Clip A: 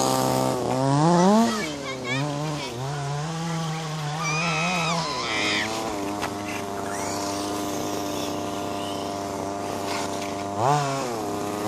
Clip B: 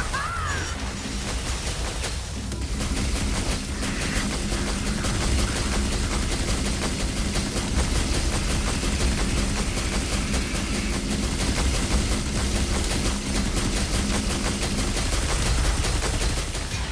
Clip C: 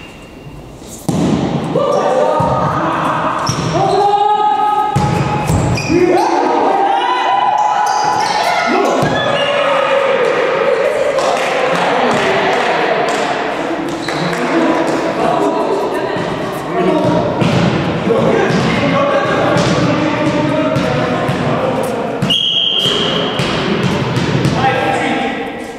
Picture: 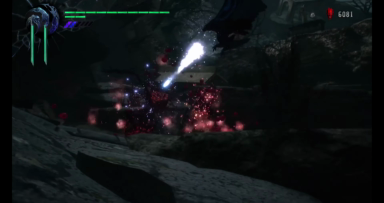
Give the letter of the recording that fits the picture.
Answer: B